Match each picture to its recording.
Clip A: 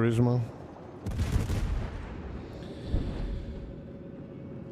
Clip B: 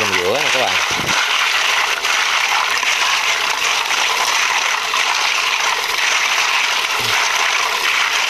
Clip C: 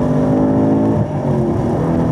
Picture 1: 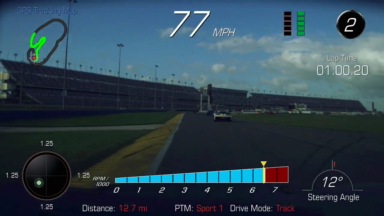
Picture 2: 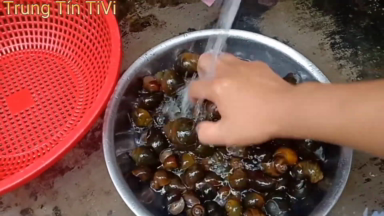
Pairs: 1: C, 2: B